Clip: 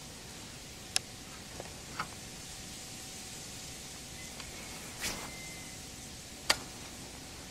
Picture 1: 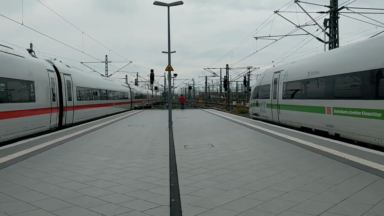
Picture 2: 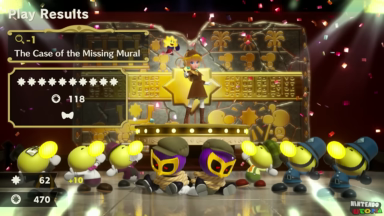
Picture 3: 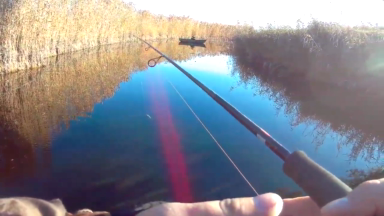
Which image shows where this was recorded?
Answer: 3